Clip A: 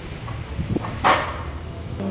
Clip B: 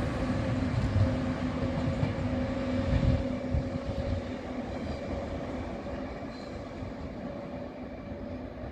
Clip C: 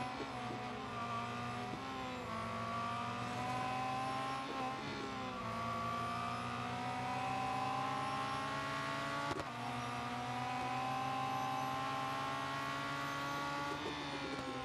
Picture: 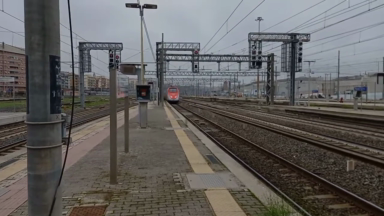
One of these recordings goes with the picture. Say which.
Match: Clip B